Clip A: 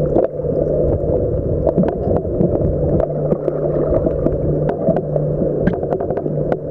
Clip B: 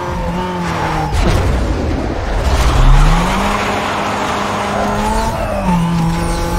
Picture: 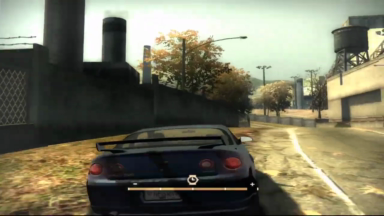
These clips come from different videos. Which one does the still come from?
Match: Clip B